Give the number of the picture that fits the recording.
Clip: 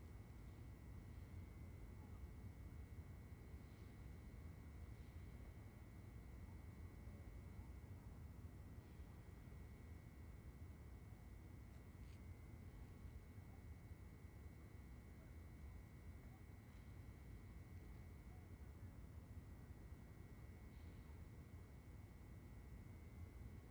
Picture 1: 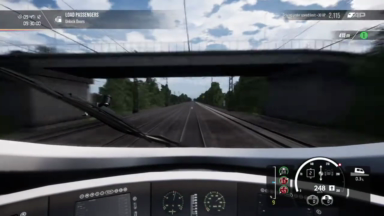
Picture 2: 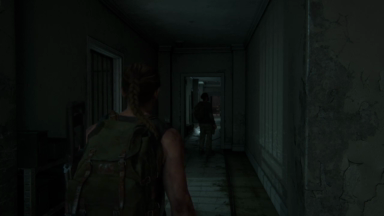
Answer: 2